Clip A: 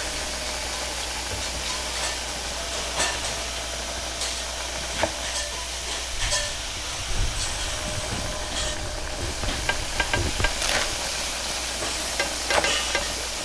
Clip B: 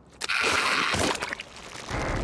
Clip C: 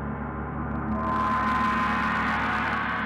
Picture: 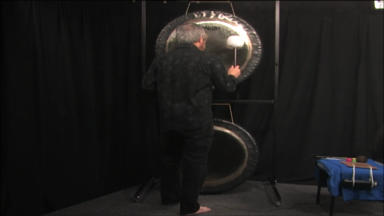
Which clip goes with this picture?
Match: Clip C